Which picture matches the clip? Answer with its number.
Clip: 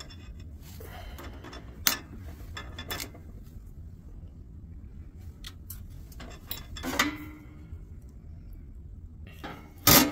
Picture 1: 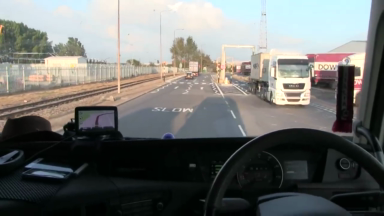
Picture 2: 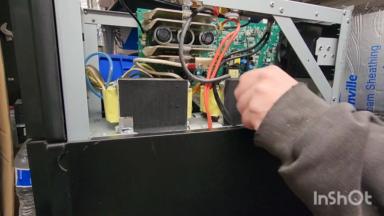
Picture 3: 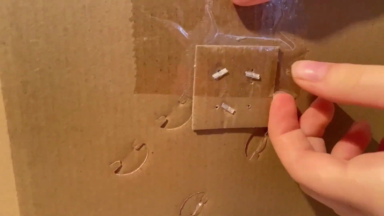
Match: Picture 2